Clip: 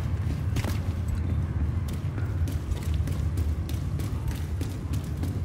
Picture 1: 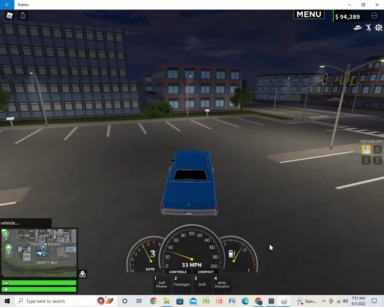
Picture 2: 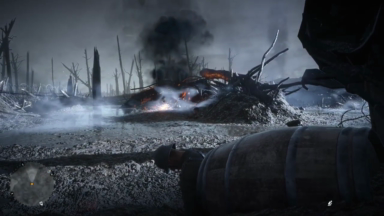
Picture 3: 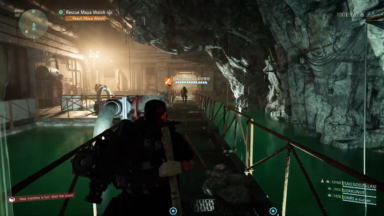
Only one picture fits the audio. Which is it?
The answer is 3